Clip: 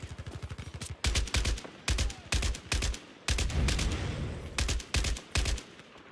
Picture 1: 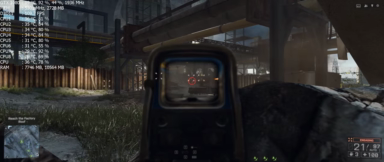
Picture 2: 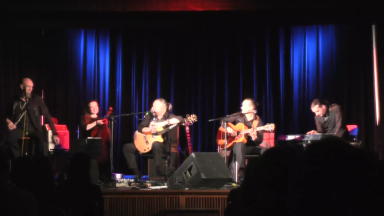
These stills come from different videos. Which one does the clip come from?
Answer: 1